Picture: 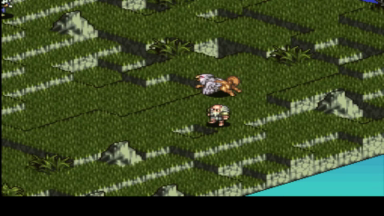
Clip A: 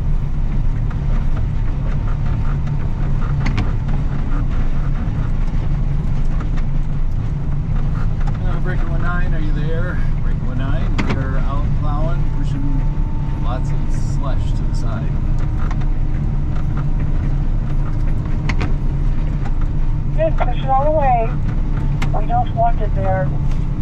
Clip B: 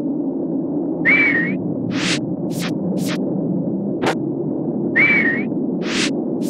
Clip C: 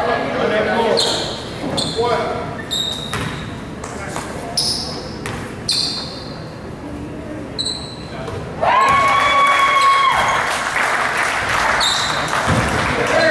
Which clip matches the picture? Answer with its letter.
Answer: B